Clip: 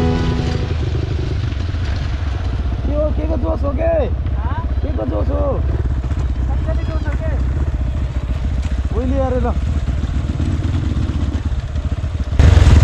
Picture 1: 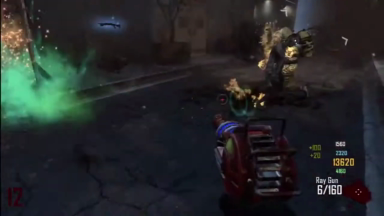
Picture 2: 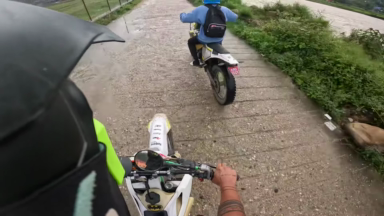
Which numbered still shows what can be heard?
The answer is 2